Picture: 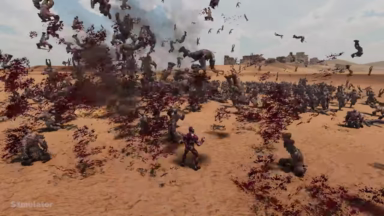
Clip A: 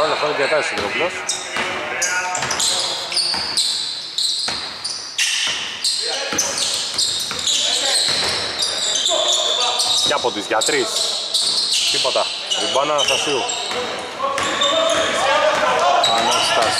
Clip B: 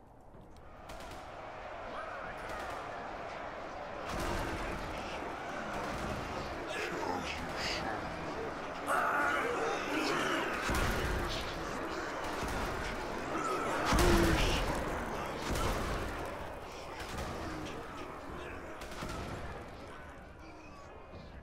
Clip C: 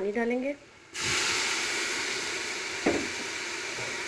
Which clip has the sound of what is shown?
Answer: B